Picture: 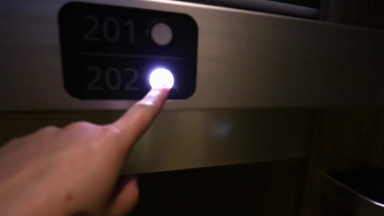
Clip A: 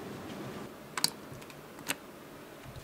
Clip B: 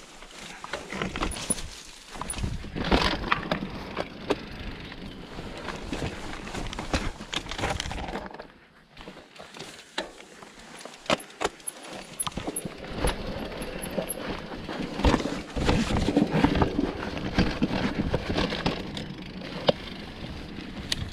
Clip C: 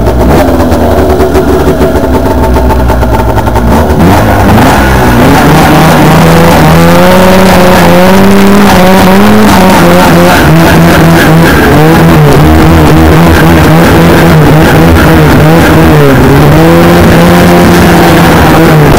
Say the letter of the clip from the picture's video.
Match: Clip A